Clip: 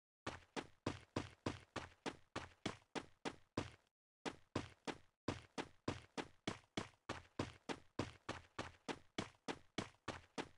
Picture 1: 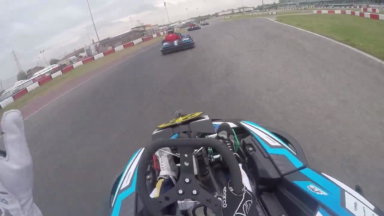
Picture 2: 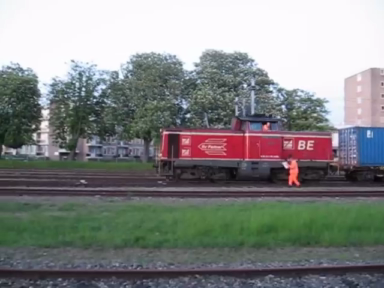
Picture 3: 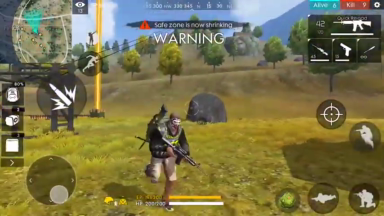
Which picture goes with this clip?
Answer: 3